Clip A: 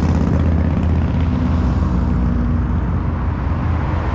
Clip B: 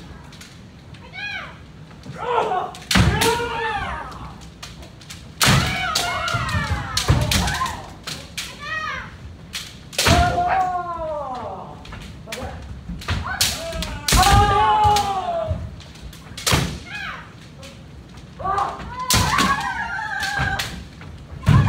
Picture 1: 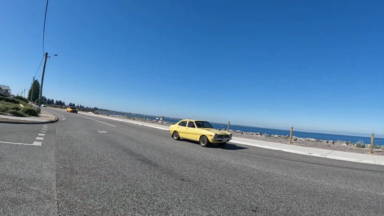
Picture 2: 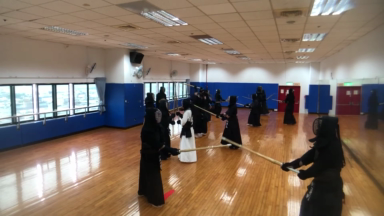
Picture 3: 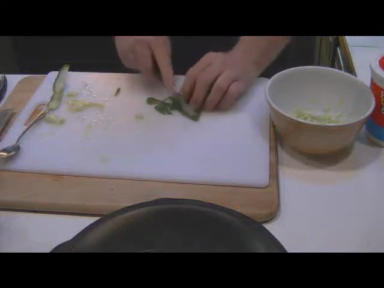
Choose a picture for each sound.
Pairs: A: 1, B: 2